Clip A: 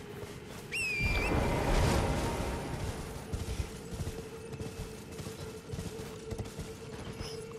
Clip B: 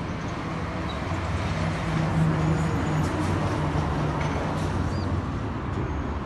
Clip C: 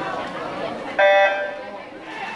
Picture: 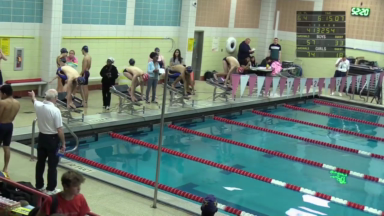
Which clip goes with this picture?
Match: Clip C